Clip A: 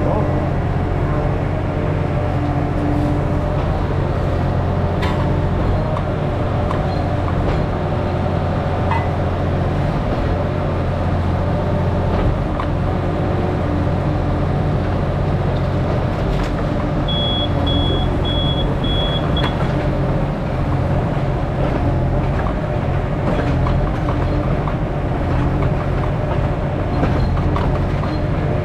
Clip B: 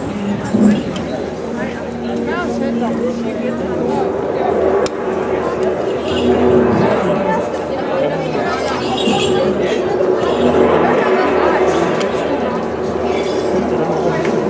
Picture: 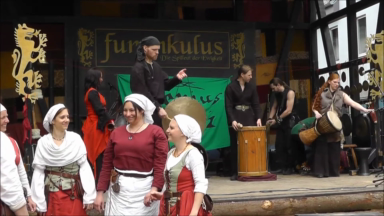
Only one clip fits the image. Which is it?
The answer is B